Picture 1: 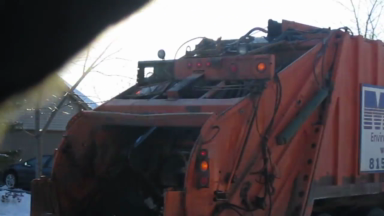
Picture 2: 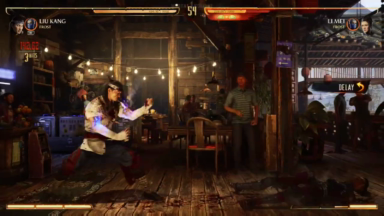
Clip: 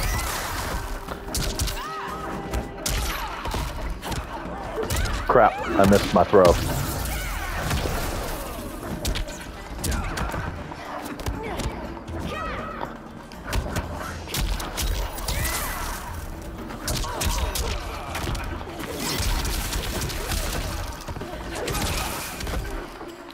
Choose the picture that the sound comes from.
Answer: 2